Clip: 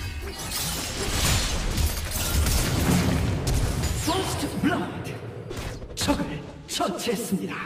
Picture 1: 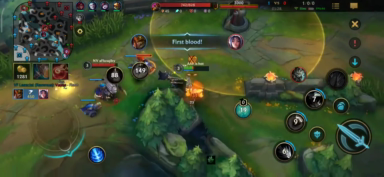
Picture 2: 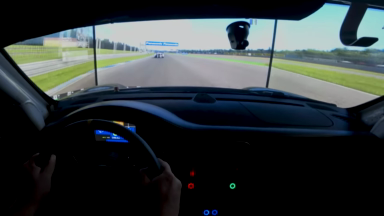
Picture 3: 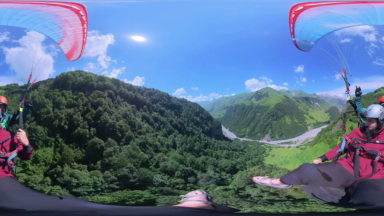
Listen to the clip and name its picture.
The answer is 1